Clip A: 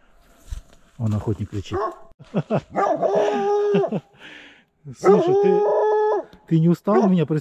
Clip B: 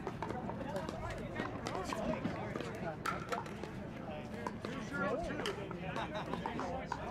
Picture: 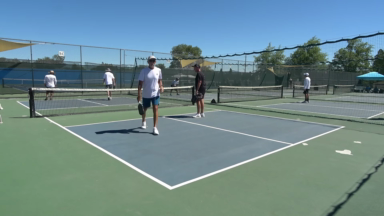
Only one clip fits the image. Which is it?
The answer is B